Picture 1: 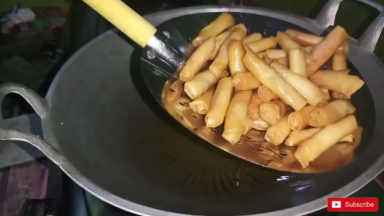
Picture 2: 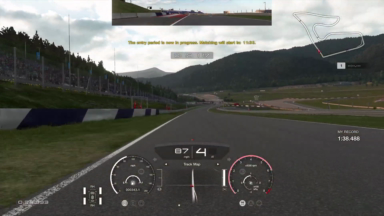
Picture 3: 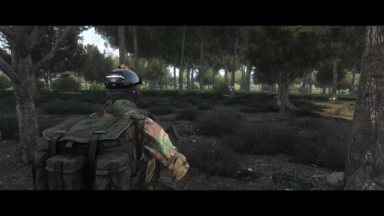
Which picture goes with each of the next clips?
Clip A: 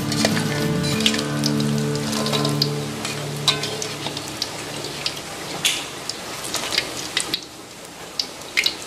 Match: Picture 1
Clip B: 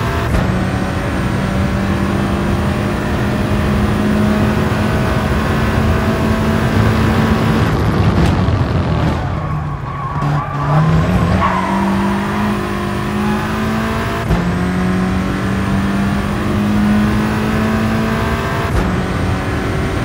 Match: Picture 2